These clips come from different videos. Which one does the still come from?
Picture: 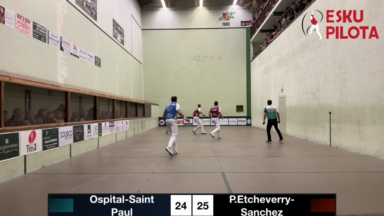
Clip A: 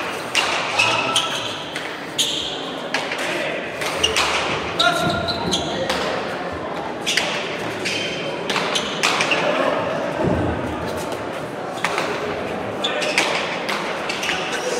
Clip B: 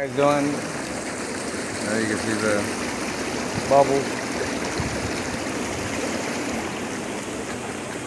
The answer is A